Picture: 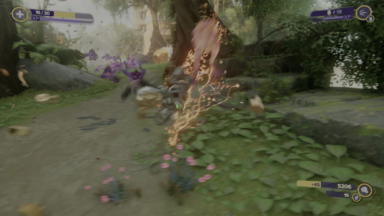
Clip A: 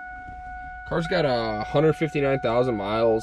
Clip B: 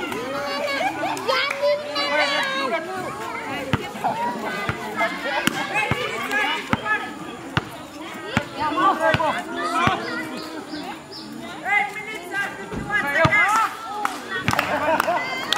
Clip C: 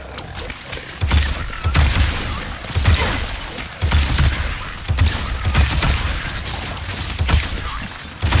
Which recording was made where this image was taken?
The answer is C